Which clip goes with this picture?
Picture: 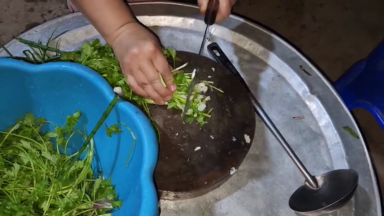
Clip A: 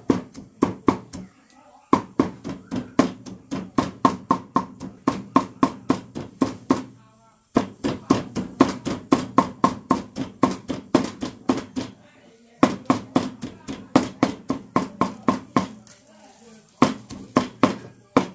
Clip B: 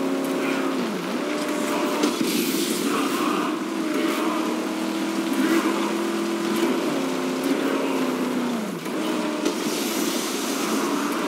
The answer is A